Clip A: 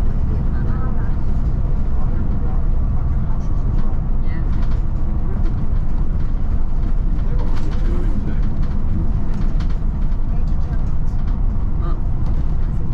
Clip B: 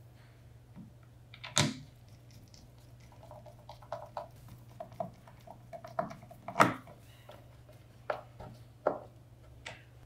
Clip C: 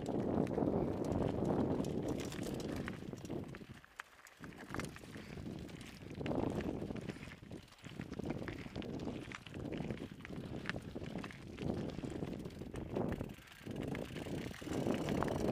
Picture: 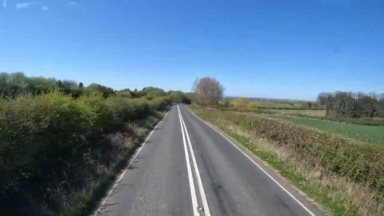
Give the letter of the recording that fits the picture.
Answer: A